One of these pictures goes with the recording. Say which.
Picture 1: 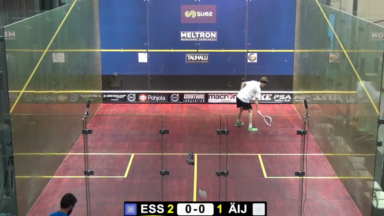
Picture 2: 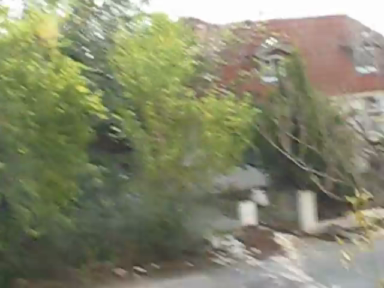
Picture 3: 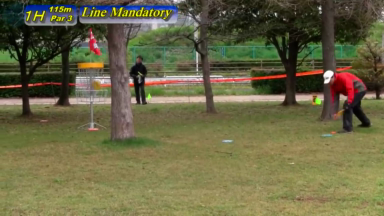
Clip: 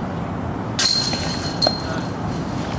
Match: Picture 3